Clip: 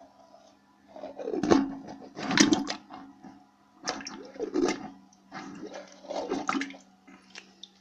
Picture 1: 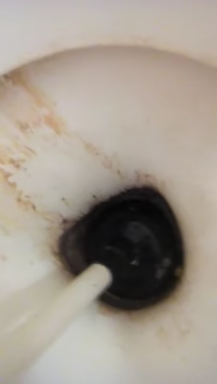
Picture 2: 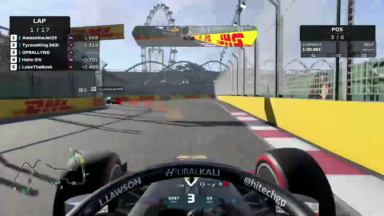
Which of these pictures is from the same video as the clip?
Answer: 1